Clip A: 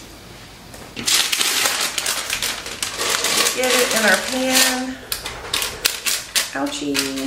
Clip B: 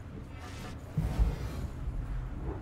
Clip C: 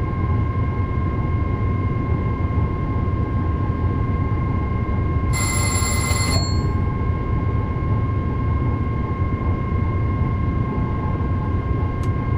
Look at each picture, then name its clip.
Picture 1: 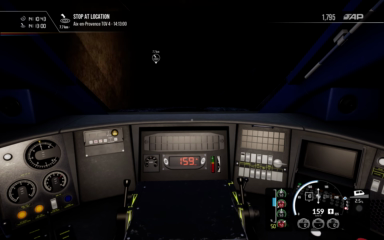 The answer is C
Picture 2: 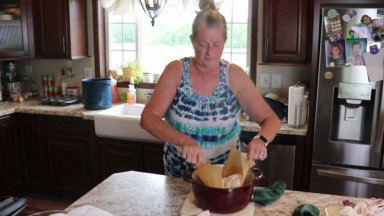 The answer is A